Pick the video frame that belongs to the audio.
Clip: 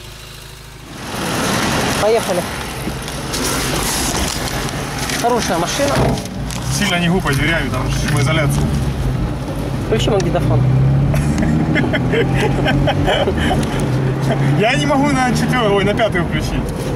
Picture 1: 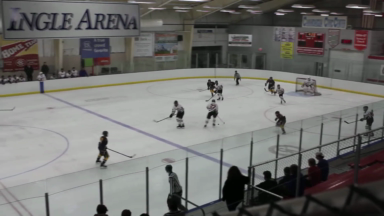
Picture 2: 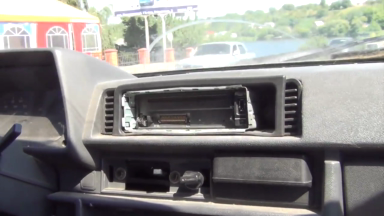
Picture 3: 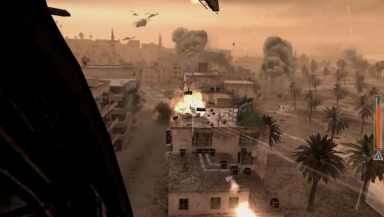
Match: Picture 2